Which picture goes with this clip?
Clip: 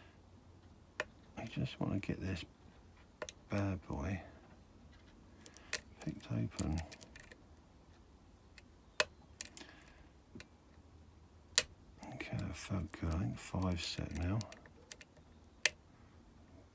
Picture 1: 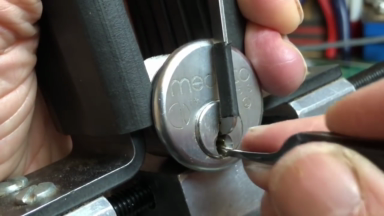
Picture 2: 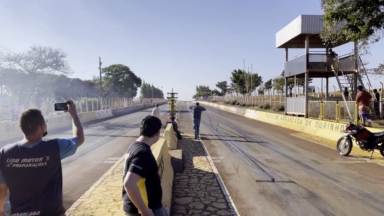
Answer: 1